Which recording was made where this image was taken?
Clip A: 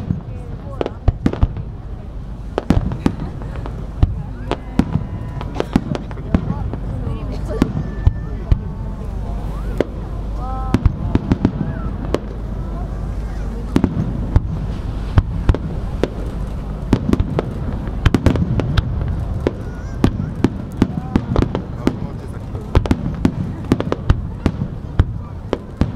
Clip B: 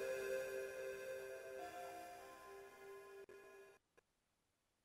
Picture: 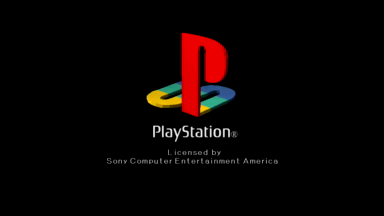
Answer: B